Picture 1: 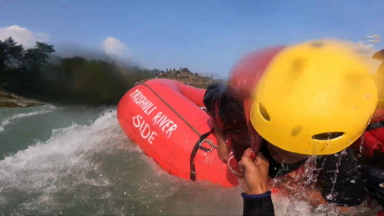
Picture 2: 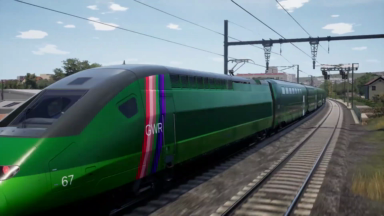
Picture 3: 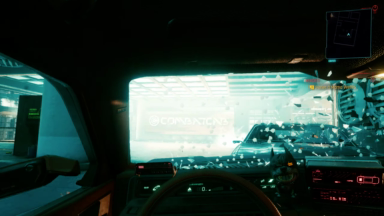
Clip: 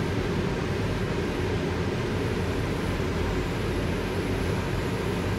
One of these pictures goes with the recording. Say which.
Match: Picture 2